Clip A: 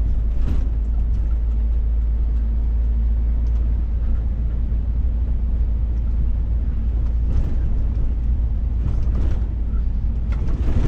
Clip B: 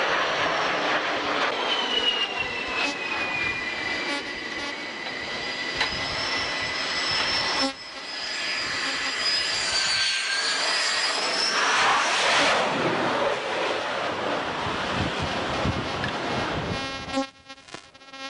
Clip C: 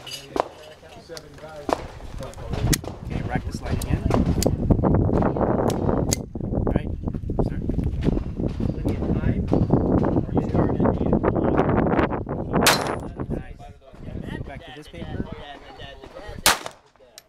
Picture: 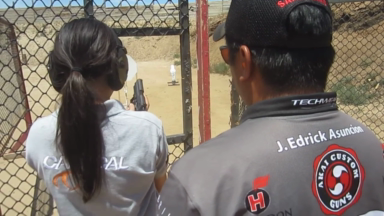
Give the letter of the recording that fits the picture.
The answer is C